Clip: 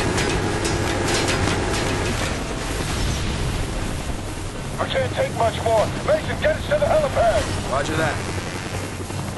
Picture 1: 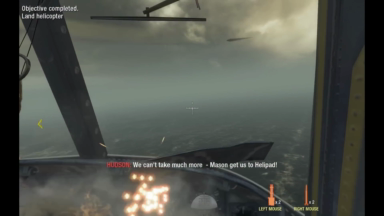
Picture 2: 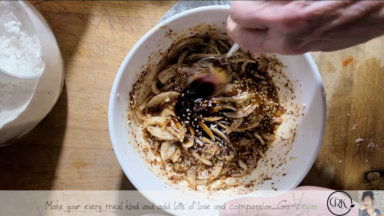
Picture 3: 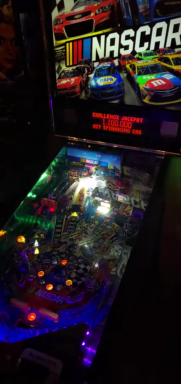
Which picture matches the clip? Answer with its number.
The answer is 1